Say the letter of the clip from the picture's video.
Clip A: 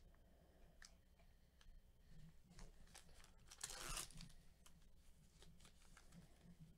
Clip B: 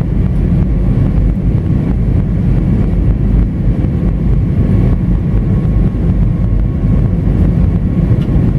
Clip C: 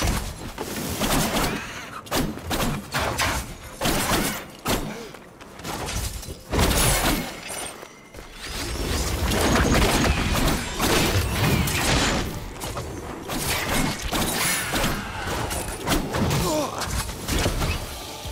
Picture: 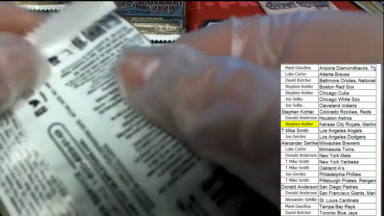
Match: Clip A